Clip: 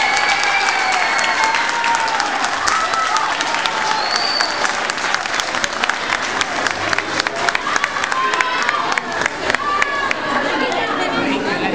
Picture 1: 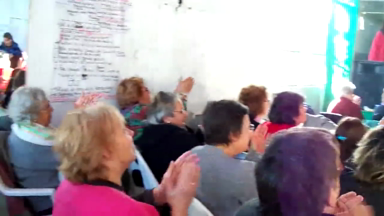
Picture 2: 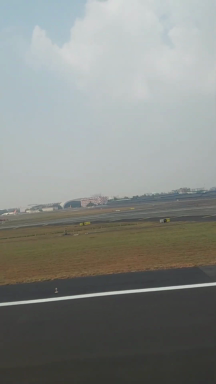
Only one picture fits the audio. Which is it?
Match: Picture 1